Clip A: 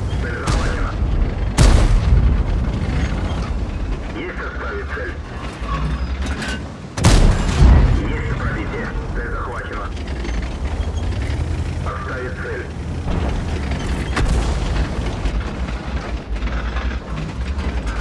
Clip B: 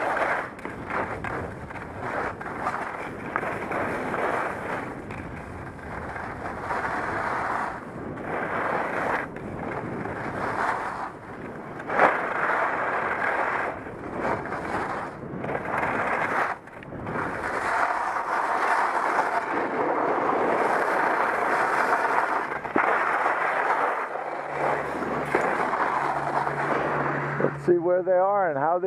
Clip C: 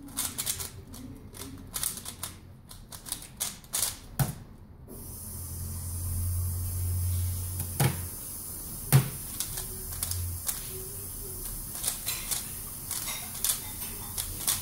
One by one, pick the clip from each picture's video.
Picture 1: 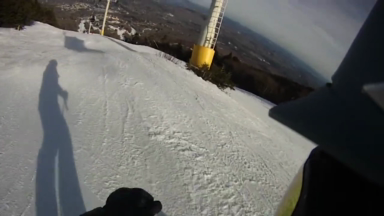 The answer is B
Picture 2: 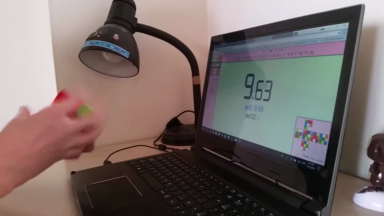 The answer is C